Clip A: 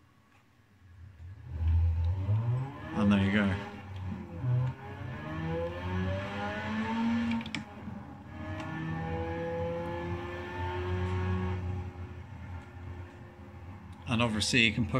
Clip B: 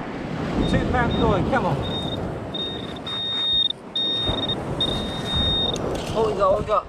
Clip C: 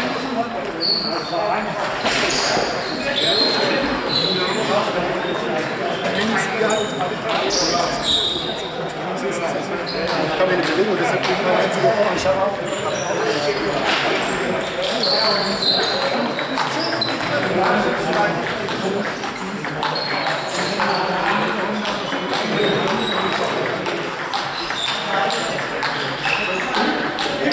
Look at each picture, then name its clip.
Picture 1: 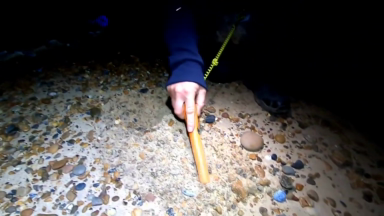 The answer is B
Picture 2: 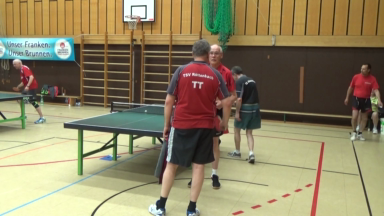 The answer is C